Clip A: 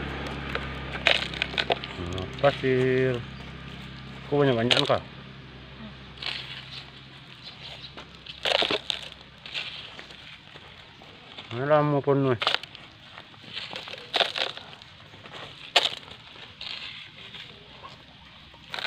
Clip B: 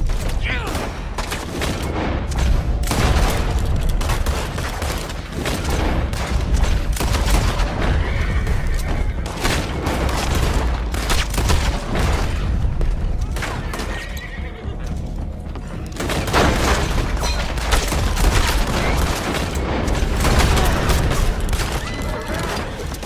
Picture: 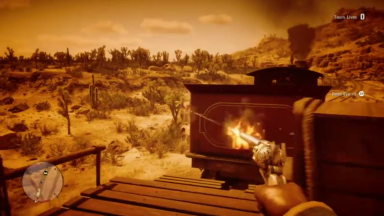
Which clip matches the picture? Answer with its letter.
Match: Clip B